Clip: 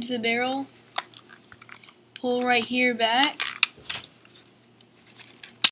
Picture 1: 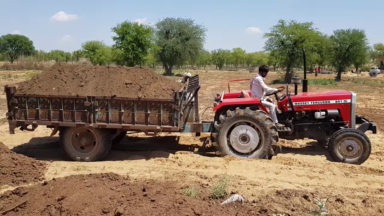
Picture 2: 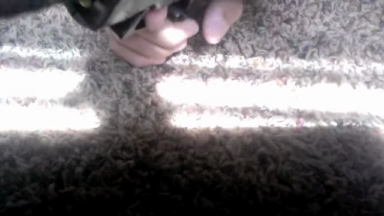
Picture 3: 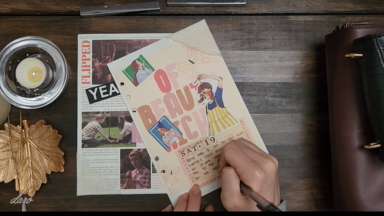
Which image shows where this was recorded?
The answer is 2